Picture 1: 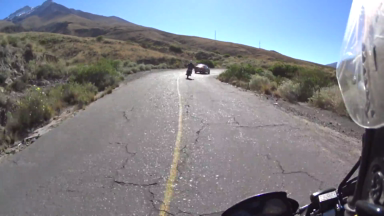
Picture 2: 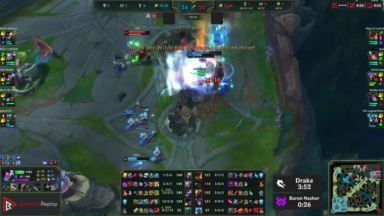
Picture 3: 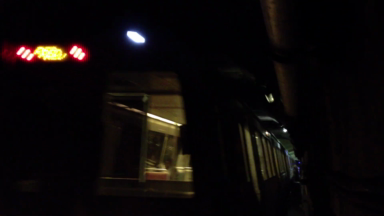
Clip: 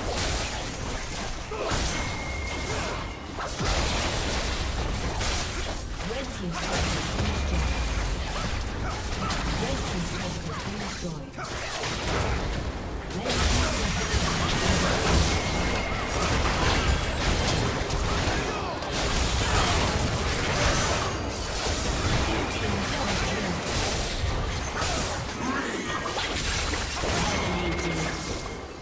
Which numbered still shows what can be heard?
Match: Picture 2